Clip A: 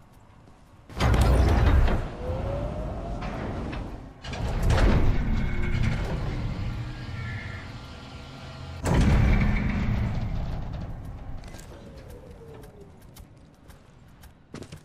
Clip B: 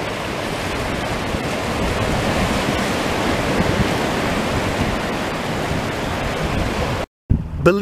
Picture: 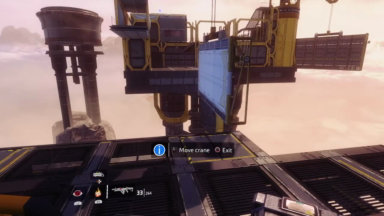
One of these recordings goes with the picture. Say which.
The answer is A